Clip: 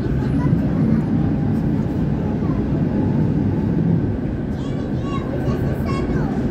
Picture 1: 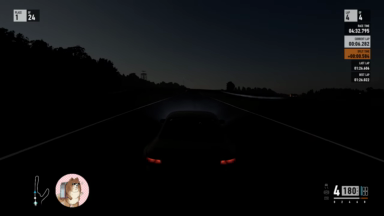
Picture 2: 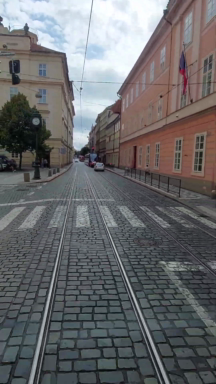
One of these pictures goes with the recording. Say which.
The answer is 2